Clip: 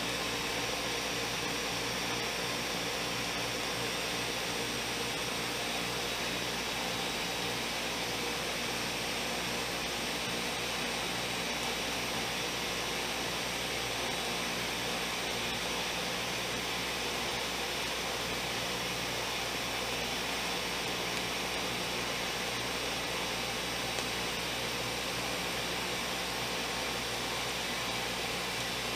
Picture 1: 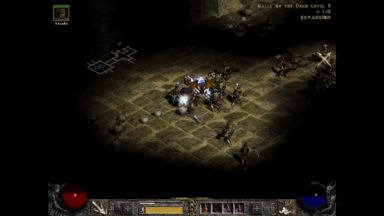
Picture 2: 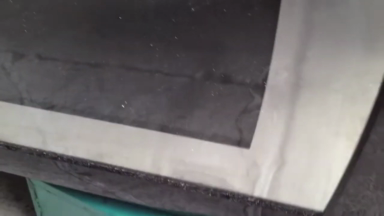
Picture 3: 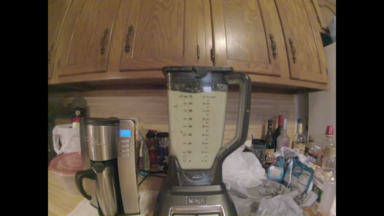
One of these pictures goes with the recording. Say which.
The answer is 3